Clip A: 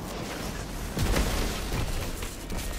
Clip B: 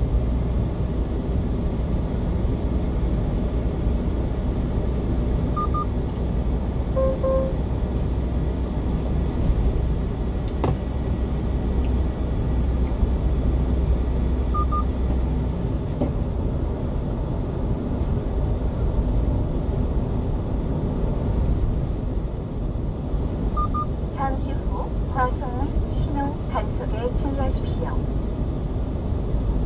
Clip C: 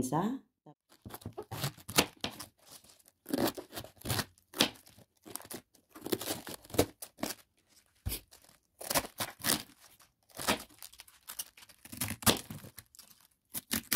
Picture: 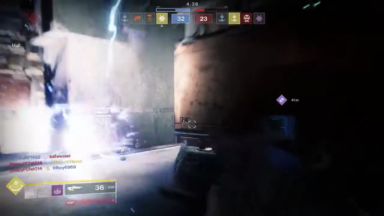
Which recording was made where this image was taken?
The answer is A